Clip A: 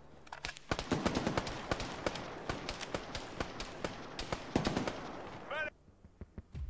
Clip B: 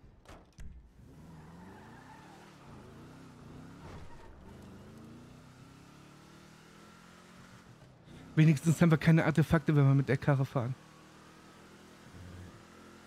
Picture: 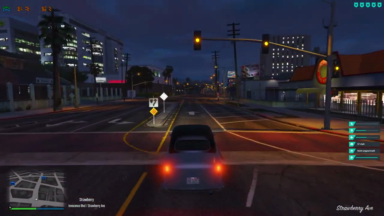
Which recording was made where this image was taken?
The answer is B